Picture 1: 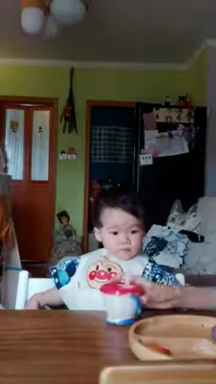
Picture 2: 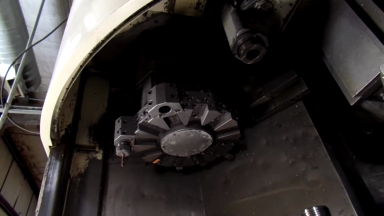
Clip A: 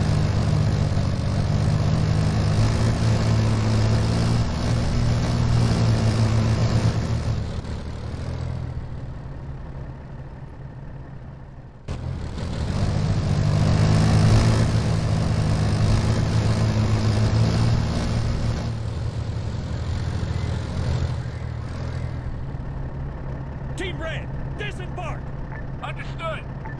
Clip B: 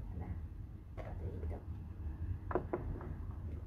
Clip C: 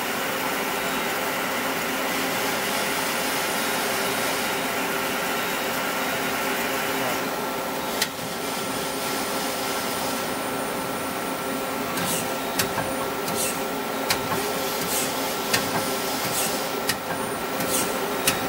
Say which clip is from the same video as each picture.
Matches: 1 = B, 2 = C